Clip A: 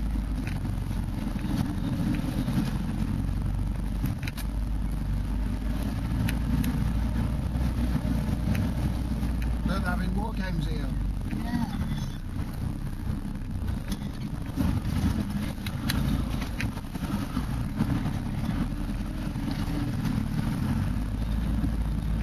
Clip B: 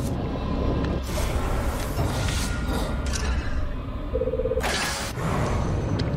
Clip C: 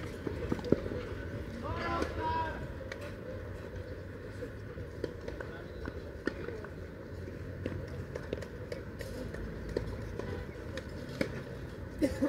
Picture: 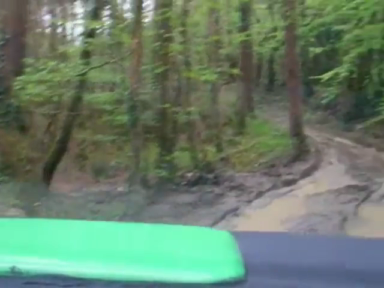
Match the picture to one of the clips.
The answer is A